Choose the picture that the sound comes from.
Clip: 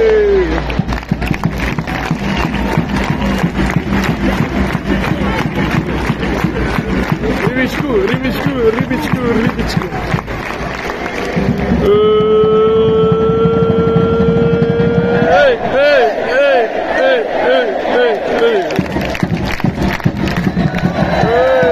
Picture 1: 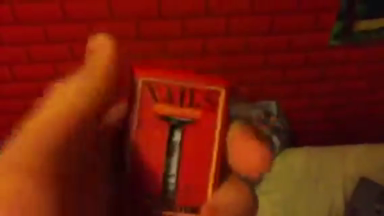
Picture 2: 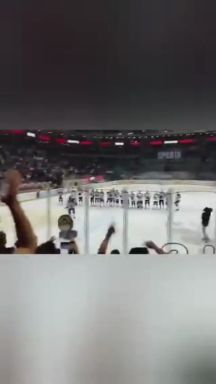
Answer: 2